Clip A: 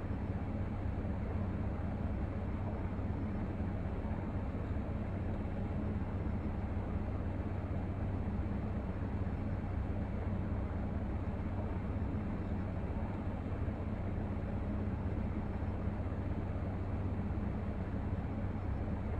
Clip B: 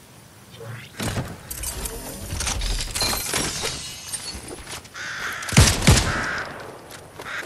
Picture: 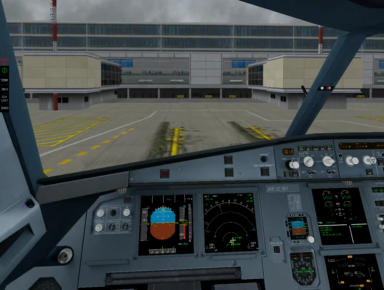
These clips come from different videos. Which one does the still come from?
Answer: A